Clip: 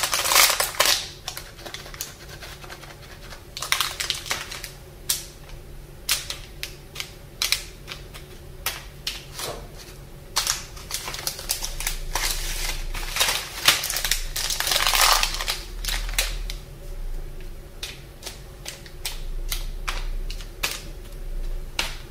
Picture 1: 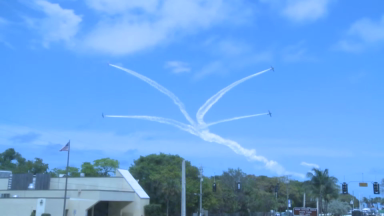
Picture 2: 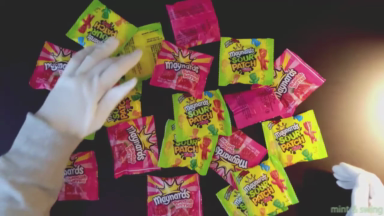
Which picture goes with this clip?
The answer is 2